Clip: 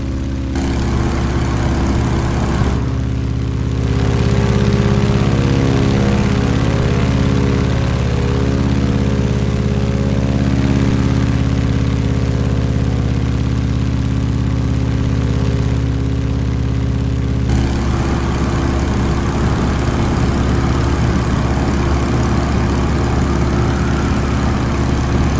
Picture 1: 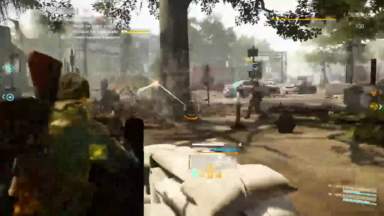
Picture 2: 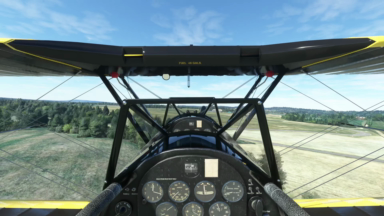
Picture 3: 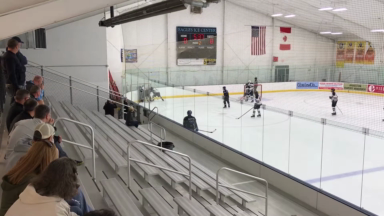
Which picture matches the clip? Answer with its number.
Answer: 2